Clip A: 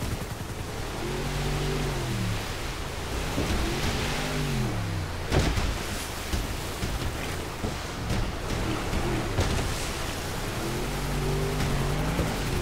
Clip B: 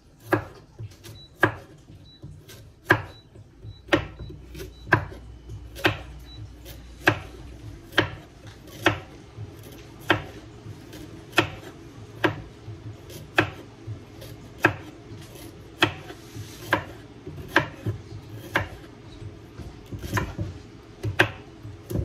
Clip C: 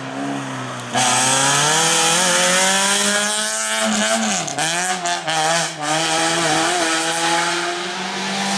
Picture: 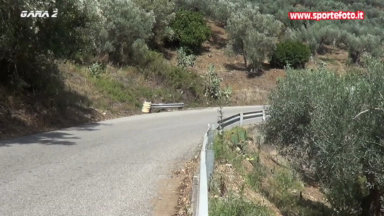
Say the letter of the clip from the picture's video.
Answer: C